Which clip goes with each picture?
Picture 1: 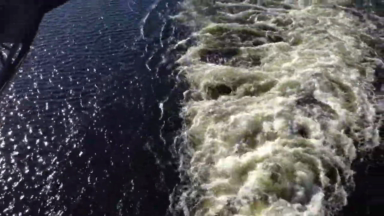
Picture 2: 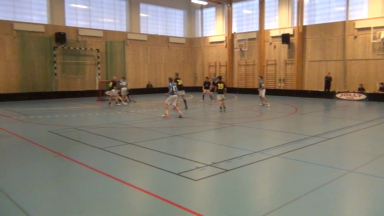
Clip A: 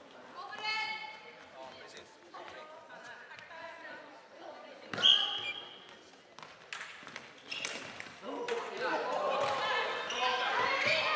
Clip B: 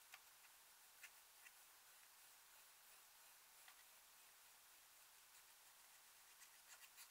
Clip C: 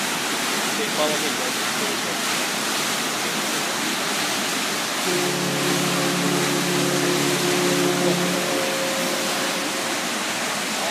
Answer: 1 C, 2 A